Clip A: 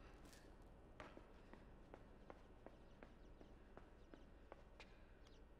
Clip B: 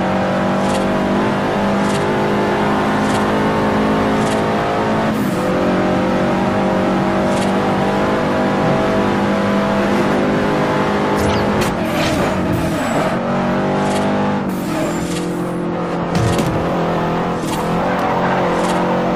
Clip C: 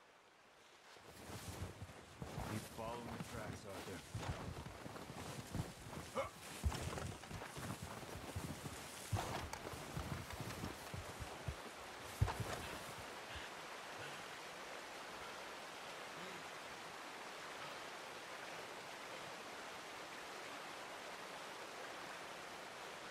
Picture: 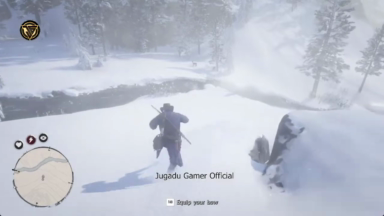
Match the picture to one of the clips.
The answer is C